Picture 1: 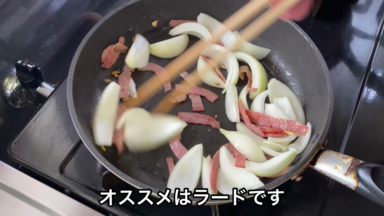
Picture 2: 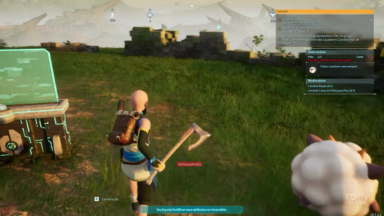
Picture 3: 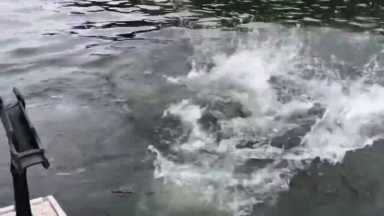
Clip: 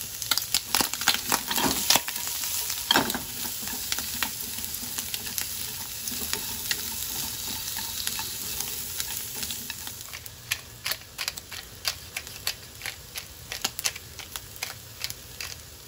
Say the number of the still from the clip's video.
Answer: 1